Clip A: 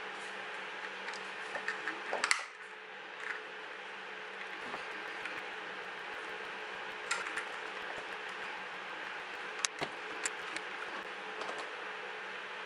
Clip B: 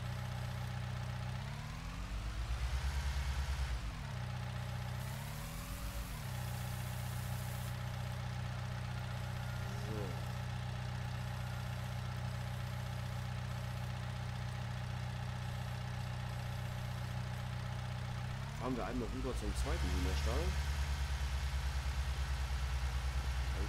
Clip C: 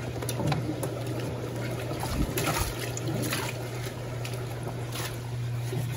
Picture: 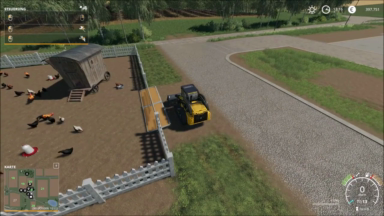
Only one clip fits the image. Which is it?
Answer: B